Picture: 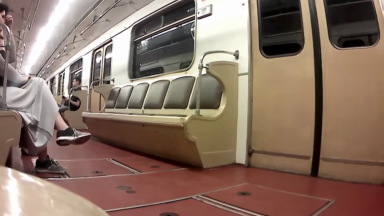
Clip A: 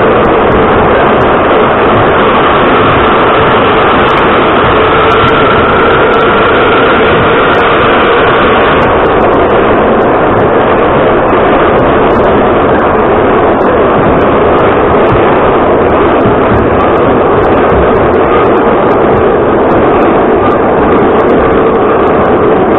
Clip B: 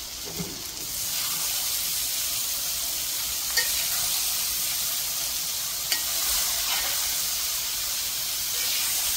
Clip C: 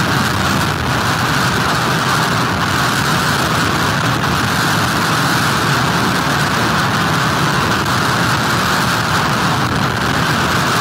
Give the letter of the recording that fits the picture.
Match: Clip A